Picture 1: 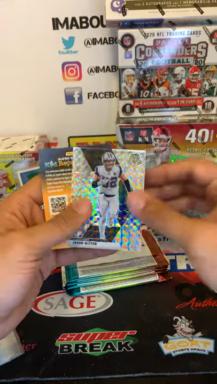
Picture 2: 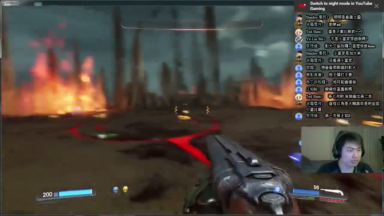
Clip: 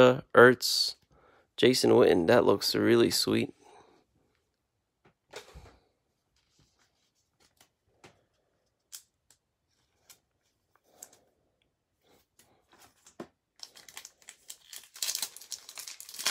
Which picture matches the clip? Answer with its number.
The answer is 1